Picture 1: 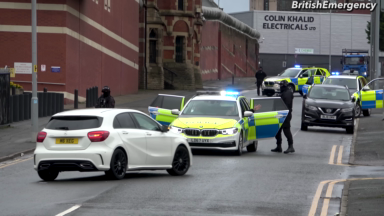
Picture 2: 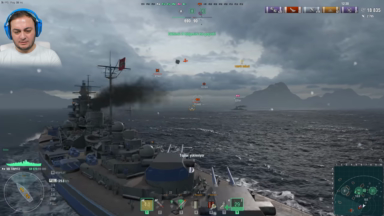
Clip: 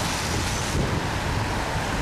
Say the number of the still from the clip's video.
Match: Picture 1